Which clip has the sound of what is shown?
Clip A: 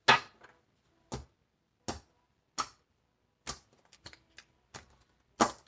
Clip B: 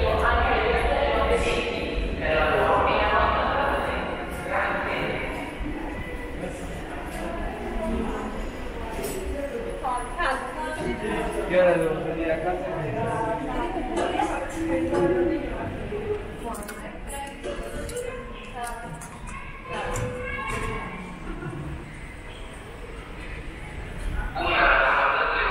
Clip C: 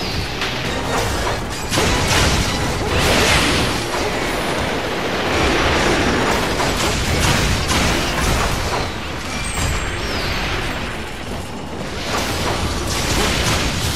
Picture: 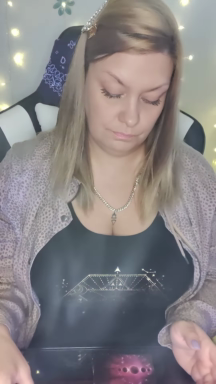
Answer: A